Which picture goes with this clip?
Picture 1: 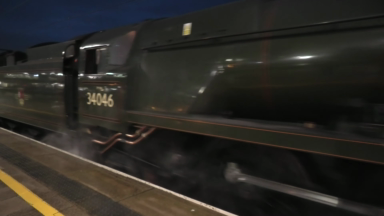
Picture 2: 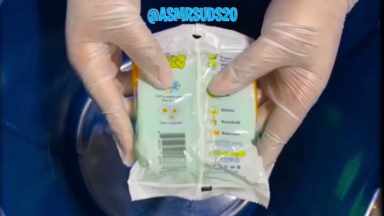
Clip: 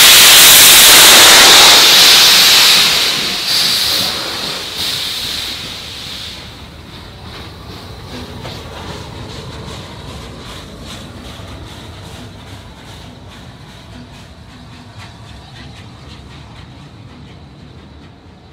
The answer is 1